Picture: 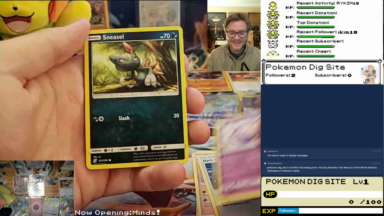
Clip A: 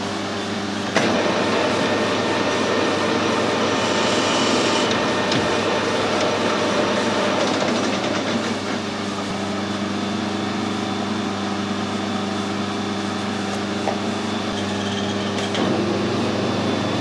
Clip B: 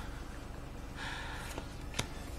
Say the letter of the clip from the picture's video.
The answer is B